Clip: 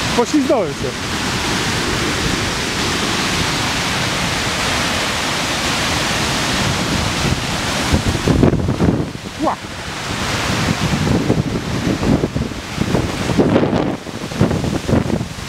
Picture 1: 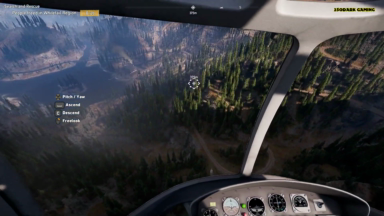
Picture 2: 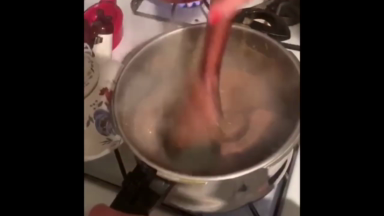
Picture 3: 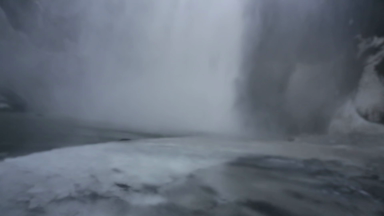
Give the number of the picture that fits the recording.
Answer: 3